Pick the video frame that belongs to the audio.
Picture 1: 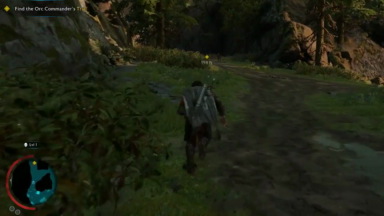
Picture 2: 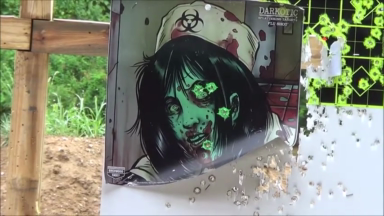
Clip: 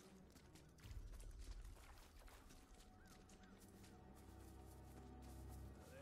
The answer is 1